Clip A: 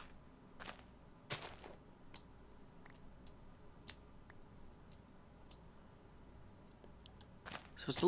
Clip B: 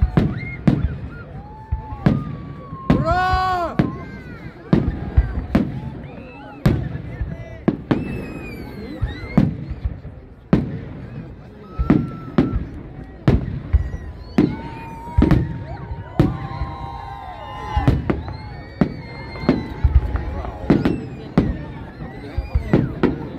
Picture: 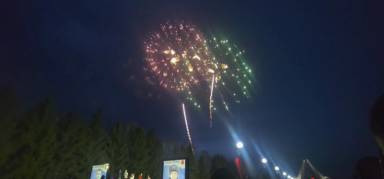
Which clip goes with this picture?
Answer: B